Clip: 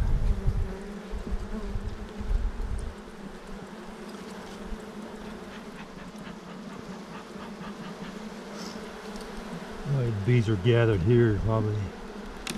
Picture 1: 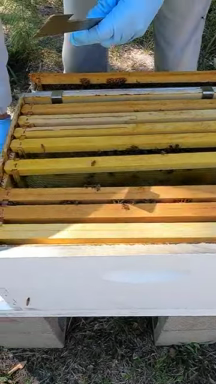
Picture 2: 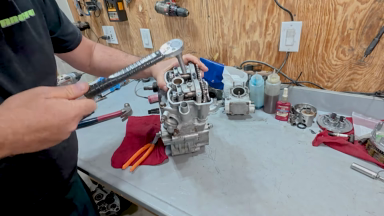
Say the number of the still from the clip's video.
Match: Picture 1